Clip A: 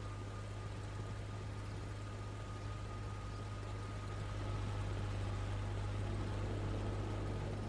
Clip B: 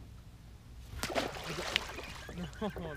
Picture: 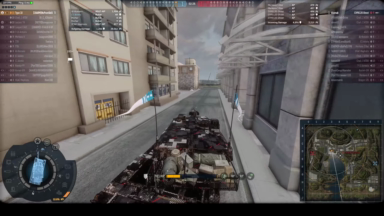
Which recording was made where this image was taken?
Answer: A